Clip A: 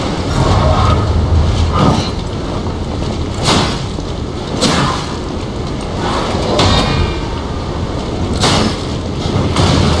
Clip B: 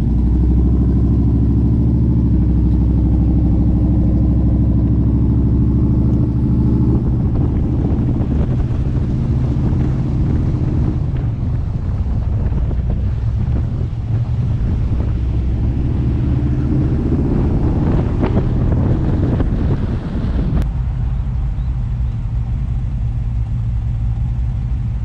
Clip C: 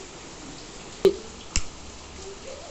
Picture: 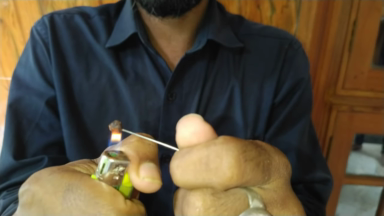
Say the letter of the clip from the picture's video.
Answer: C